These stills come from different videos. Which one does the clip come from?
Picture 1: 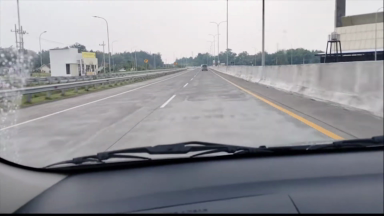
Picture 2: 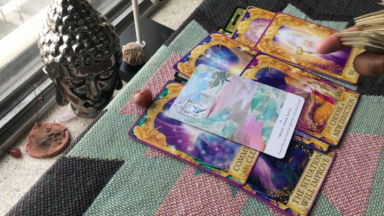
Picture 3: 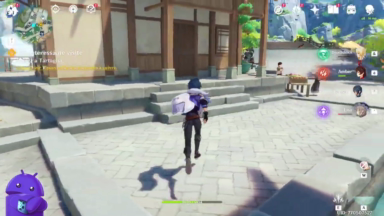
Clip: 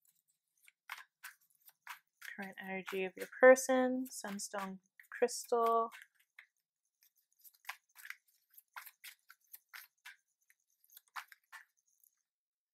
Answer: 2